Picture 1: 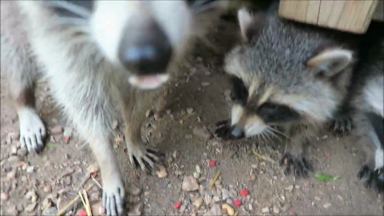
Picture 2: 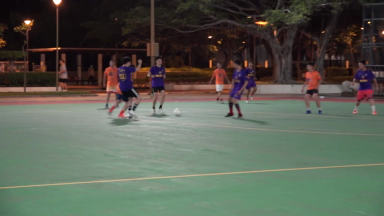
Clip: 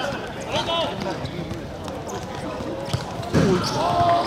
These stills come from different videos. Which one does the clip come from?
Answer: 2